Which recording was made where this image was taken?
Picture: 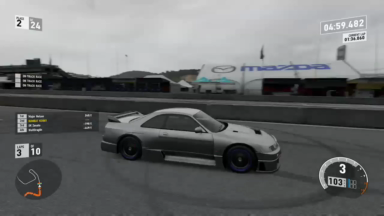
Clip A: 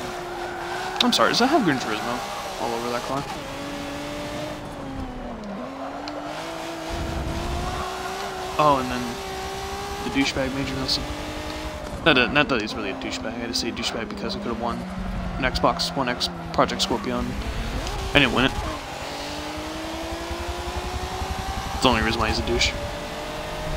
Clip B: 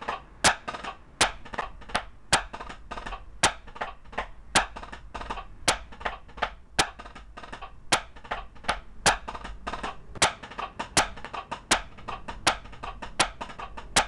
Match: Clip A